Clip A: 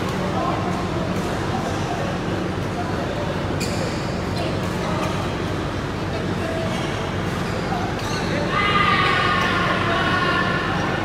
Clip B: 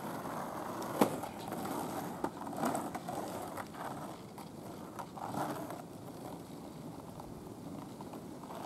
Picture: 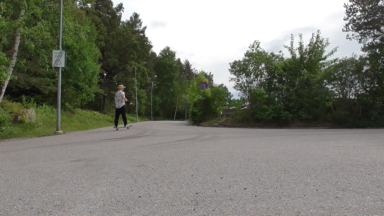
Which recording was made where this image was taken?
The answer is B